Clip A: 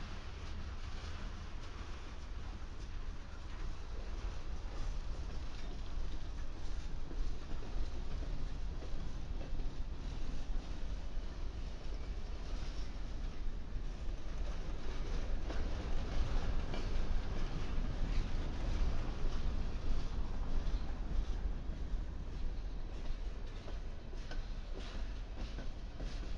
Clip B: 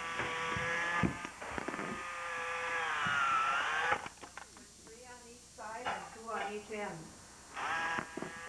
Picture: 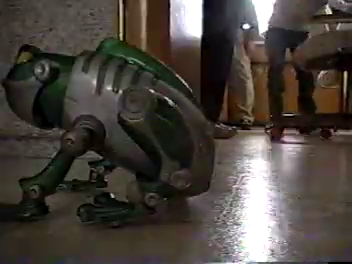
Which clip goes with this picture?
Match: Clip B